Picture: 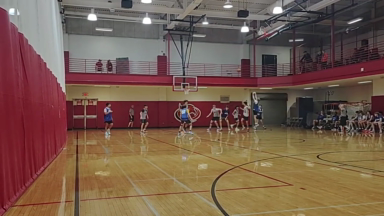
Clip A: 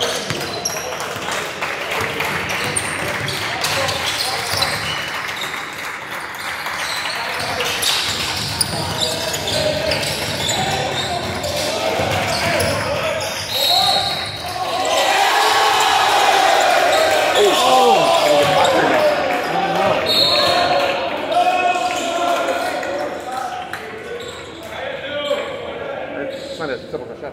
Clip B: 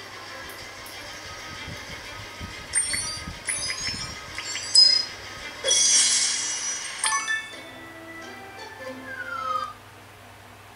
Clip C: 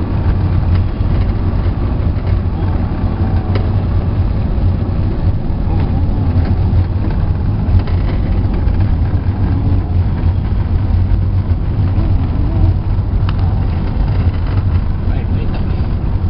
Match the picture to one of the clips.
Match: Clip A